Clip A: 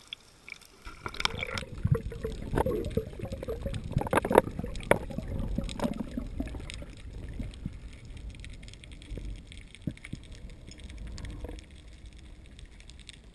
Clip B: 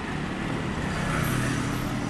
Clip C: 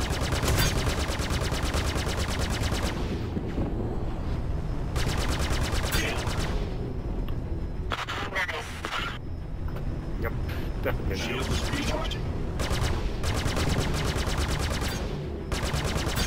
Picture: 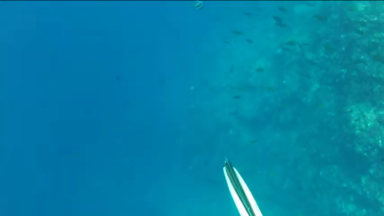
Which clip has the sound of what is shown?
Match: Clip A